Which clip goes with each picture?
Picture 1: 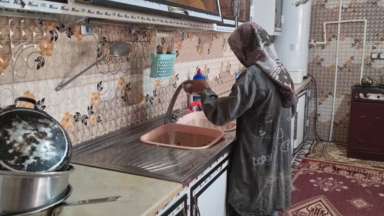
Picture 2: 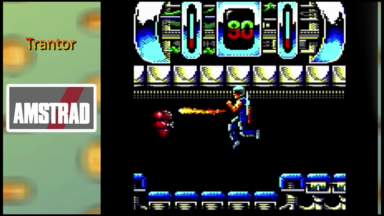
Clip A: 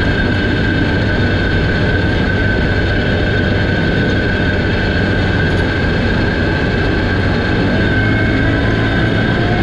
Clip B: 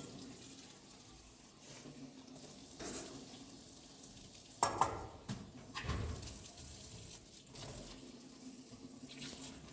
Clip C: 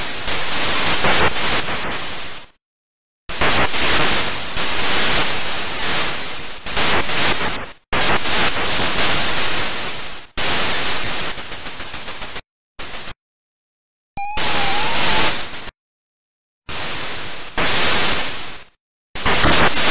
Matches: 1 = B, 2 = C